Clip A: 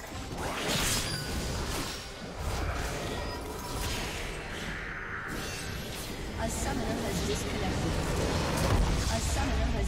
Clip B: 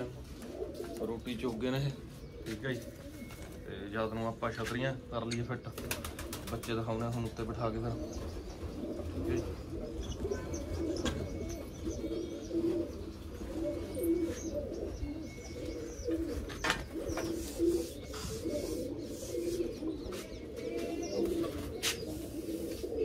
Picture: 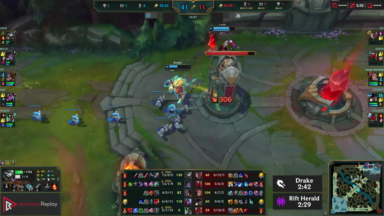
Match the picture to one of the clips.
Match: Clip A